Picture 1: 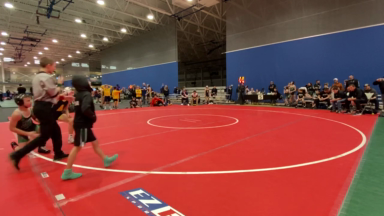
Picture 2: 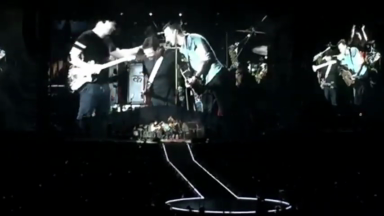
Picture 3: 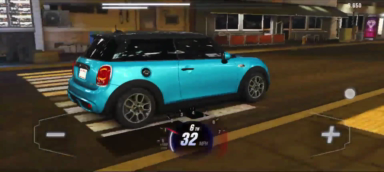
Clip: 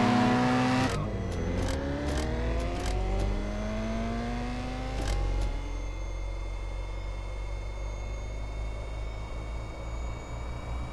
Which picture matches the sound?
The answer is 3